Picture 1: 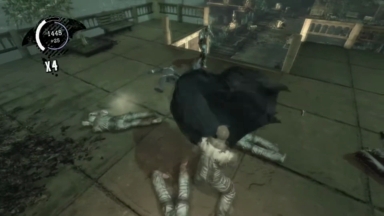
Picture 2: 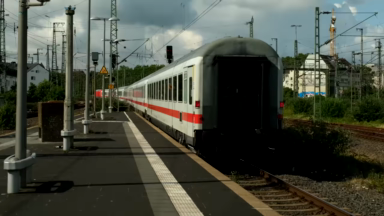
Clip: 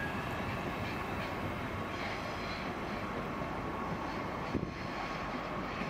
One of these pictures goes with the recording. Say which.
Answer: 2